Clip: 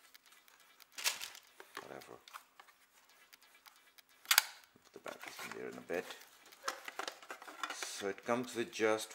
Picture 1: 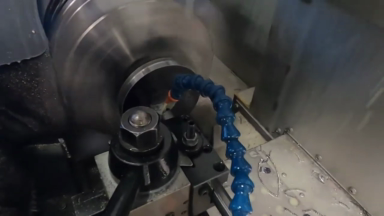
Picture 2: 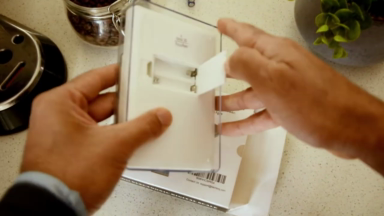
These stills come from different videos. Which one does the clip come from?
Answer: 2